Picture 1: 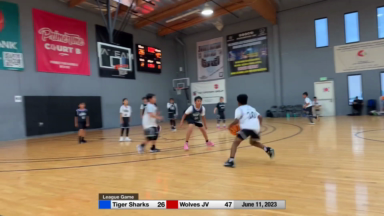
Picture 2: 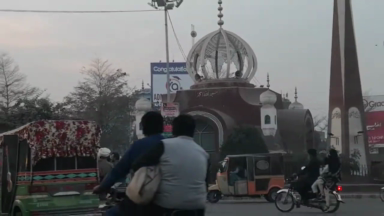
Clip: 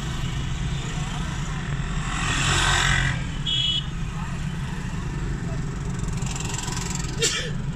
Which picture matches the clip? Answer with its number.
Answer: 2